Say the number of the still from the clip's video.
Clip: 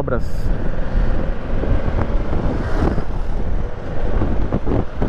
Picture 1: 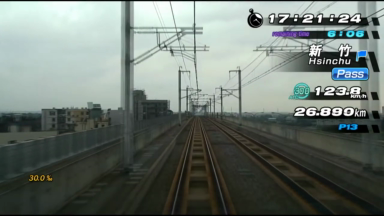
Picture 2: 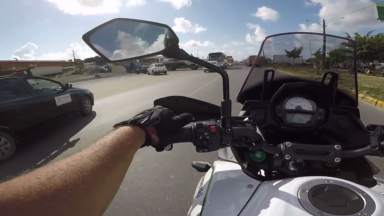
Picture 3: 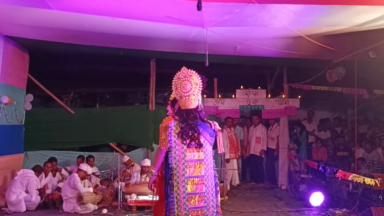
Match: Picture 2